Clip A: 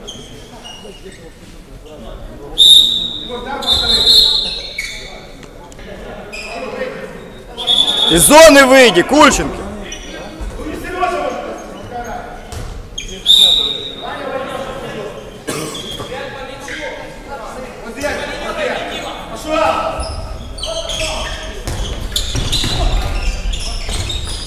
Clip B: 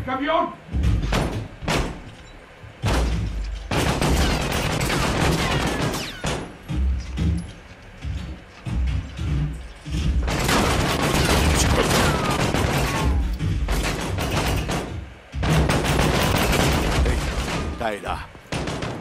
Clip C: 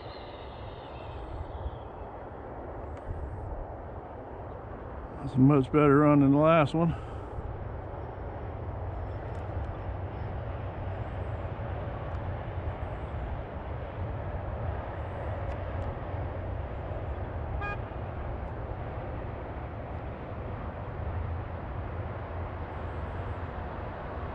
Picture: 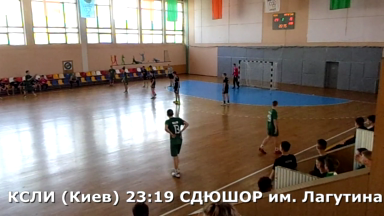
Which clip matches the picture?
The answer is A